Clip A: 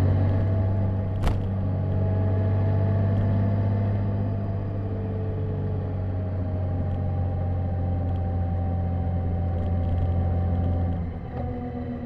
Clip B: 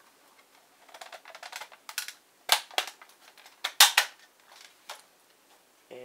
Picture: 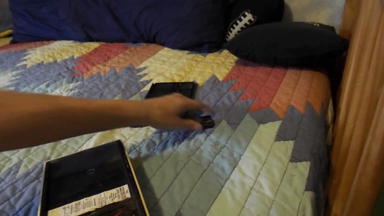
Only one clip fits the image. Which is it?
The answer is B